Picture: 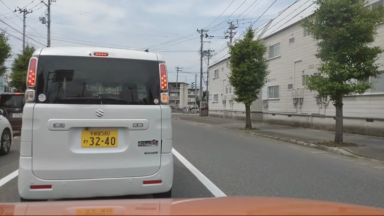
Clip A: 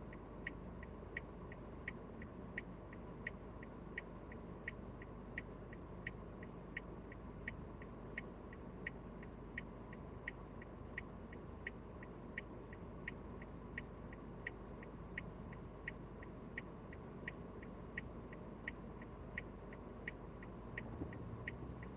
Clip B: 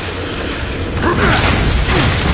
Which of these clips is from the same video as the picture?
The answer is A